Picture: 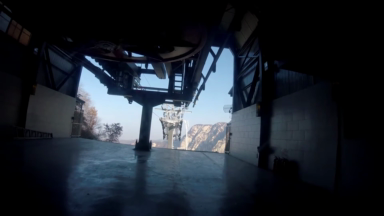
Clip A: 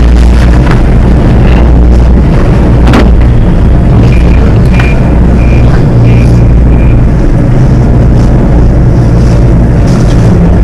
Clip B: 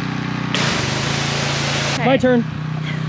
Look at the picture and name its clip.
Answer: A